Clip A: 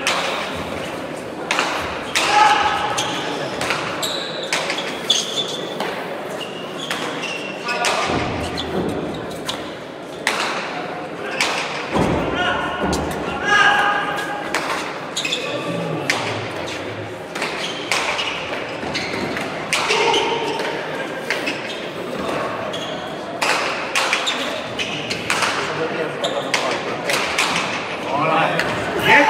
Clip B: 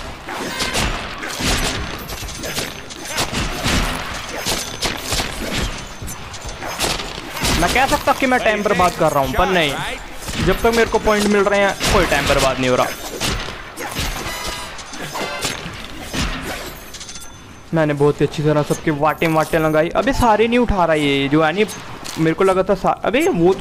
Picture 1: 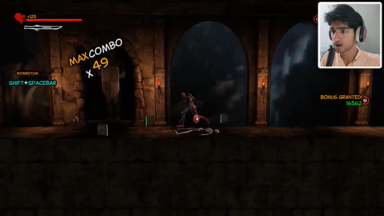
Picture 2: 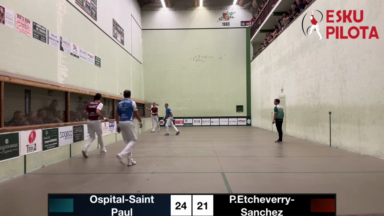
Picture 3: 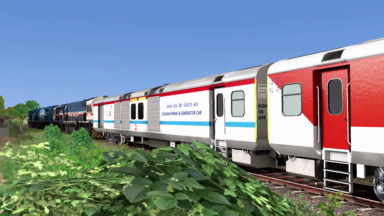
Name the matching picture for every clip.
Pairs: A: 2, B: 1